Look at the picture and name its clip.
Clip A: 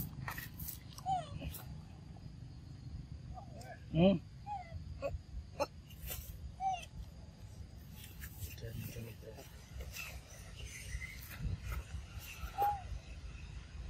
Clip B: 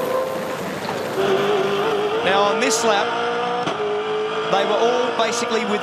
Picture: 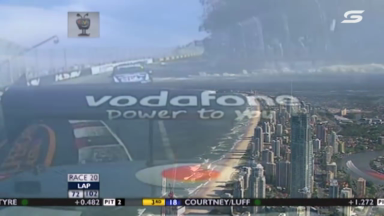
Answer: B